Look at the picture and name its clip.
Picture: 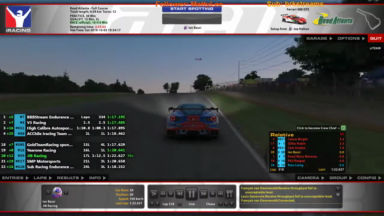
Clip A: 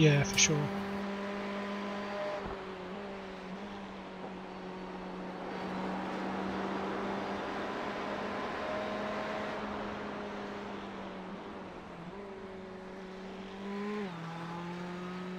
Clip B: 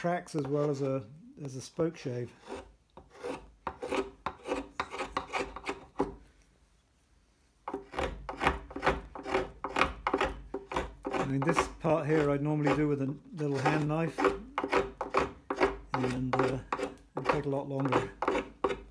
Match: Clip A